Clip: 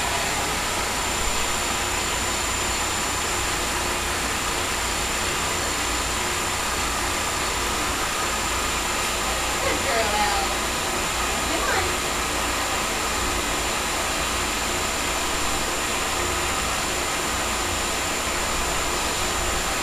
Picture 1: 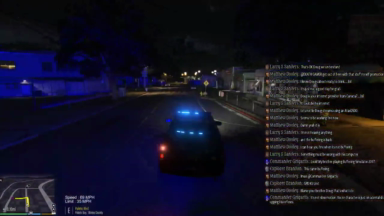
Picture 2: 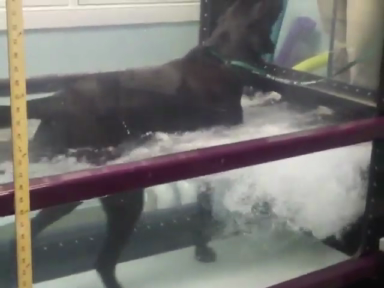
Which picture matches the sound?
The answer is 2